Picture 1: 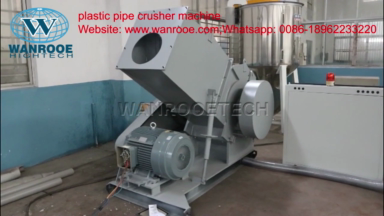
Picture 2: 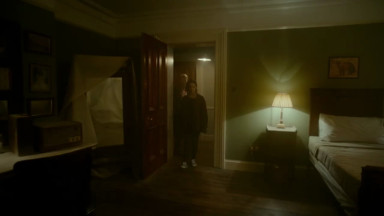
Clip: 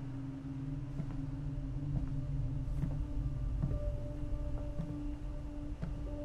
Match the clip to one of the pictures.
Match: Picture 2